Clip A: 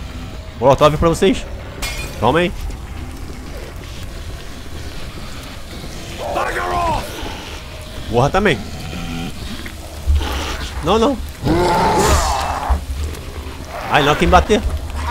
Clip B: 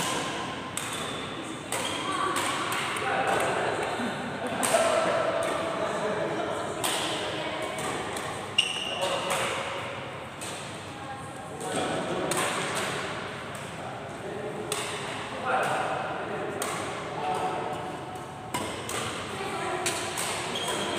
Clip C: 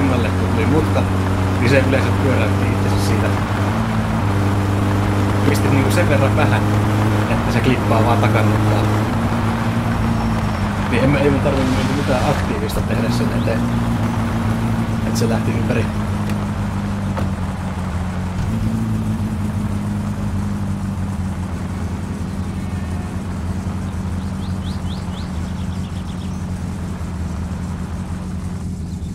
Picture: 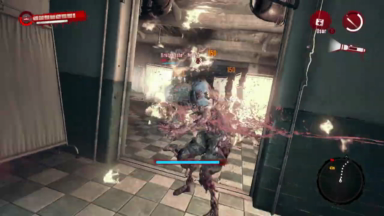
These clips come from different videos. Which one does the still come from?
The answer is A